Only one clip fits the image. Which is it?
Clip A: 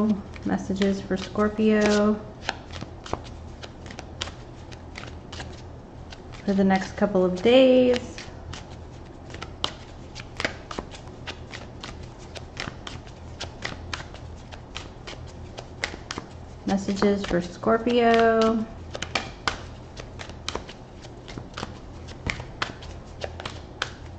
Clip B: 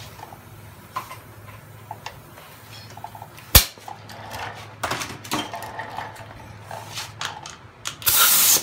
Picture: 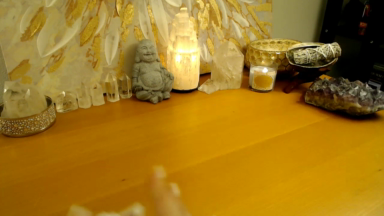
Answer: A